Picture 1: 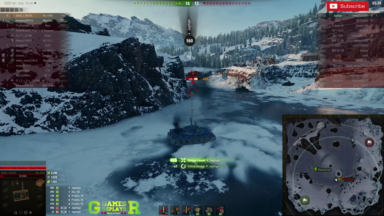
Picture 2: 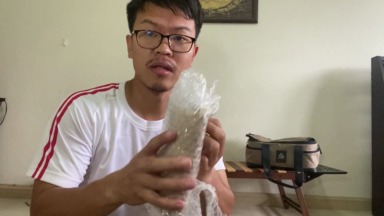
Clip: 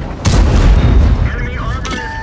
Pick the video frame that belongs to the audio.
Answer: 1